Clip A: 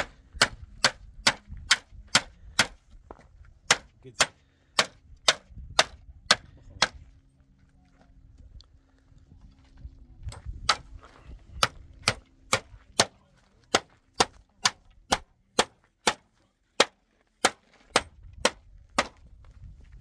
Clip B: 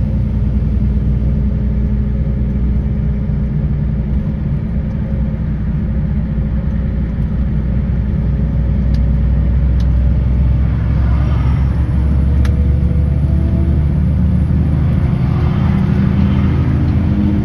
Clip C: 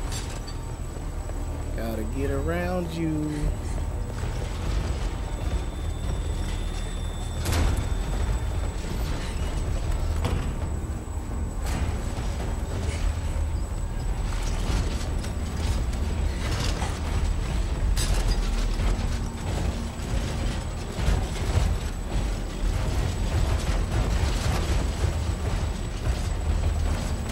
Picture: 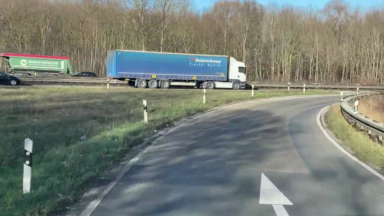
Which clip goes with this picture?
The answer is B